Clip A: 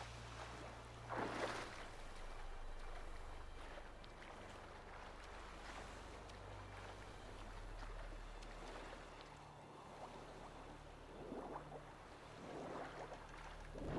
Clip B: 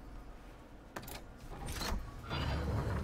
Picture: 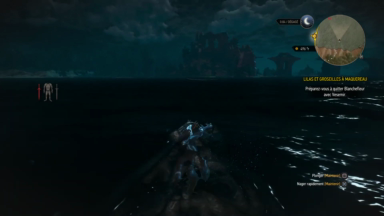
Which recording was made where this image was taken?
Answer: A